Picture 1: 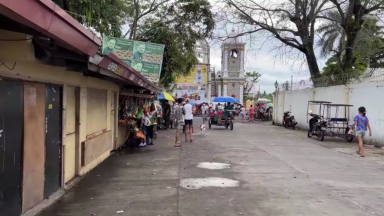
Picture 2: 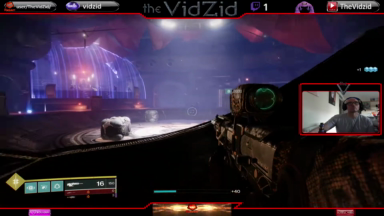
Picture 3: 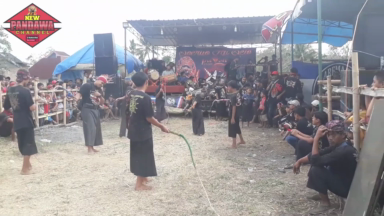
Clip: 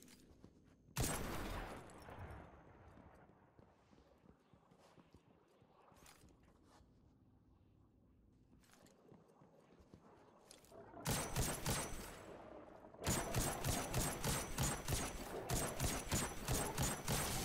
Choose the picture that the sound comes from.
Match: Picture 2